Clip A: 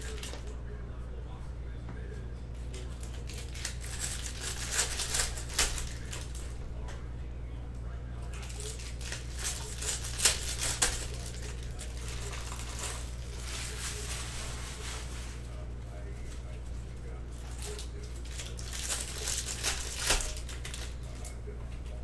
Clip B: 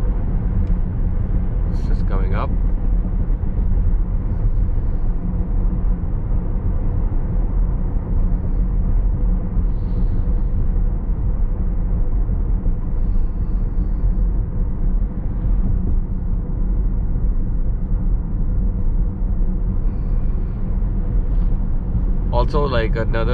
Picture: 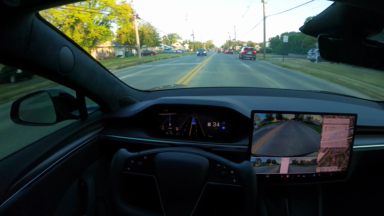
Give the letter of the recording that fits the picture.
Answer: B